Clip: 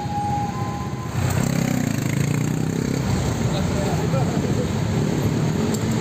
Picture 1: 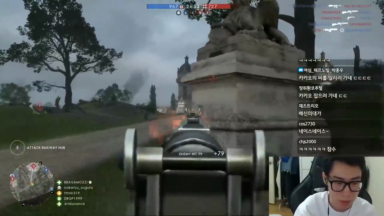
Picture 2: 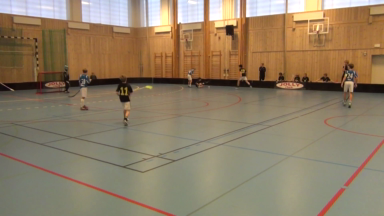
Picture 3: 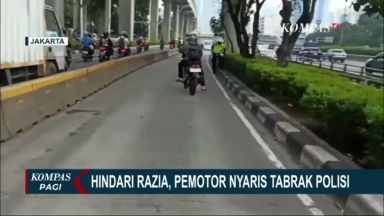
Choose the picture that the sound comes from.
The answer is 3